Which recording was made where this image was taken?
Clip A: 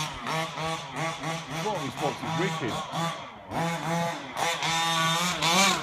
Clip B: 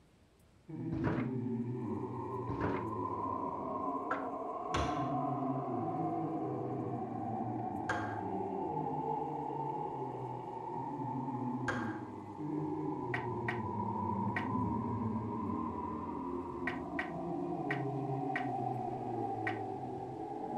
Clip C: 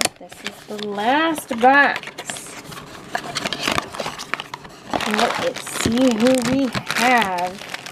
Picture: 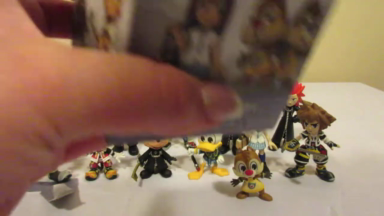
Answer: C